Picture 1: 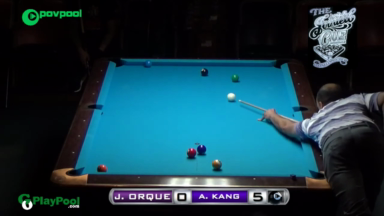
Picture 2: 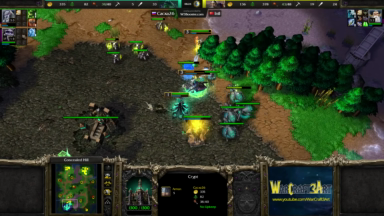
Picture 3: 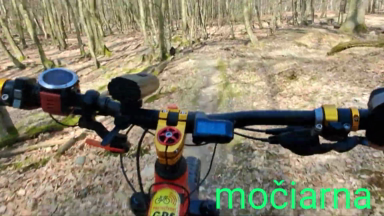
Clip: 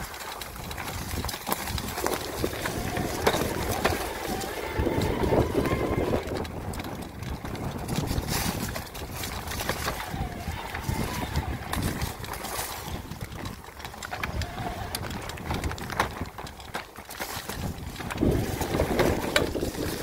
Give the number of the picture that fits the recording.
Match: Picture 3